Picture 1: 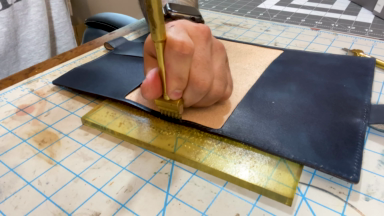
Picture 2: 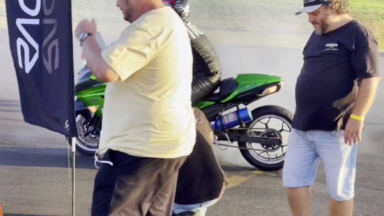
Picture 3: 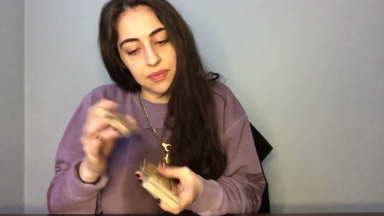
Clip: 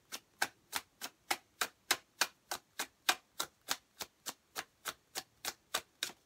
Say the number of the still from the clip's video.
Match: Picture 3